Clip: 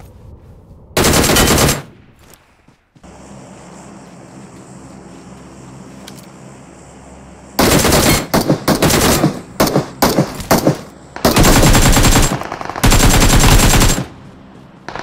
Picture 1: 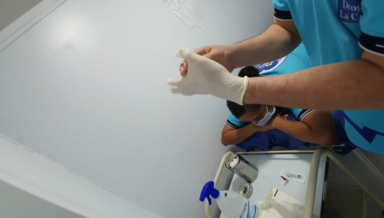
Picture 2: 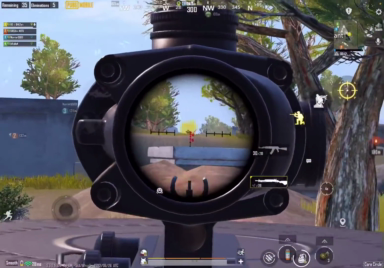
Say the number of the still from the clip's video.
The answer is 2